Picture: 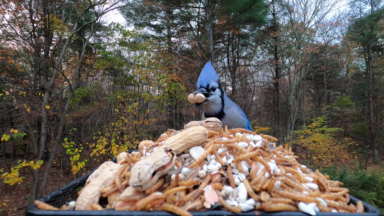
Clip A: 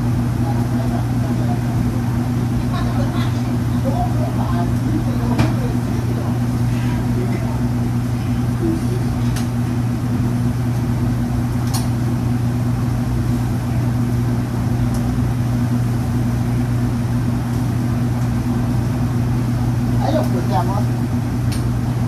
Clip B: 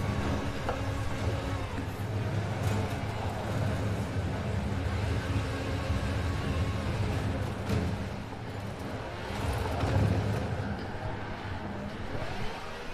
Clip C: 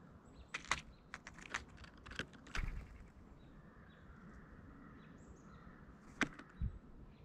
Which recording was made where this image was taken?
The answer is C